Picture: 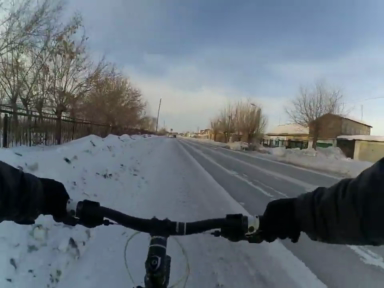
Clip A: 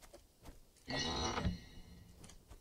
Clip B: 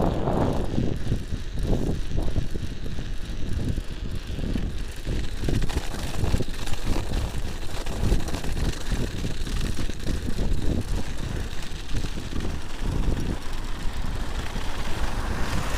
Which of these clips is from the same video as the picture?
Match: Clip B